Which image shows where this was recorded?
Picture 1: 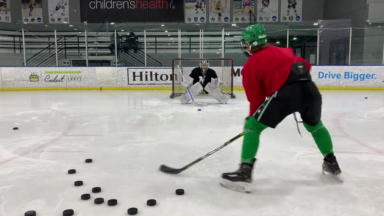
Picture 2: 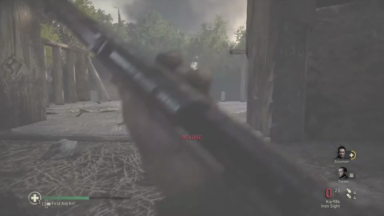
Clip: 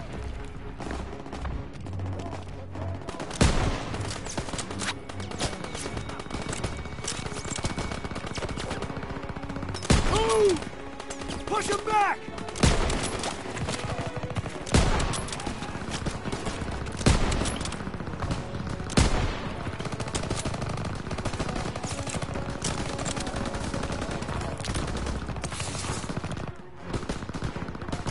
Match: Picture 2